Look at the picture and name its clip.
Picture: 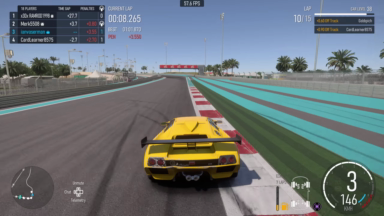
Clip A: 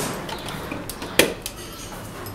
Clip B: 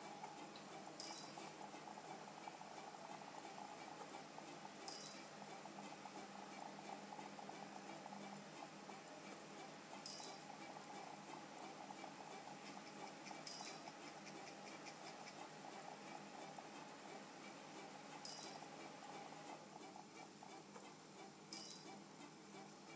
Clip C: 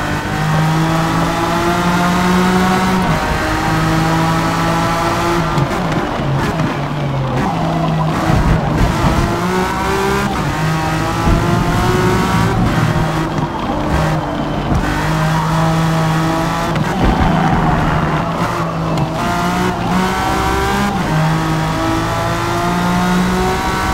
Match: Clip C